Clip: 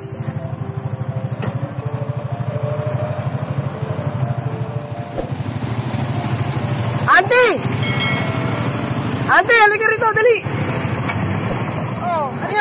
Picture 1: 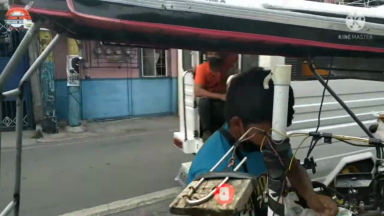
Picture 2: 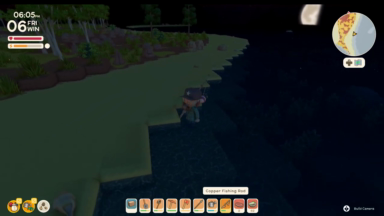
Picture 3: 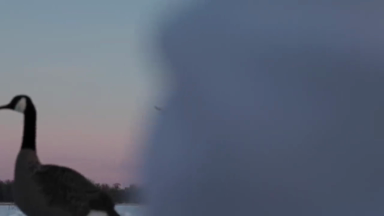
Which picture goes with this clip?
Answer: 1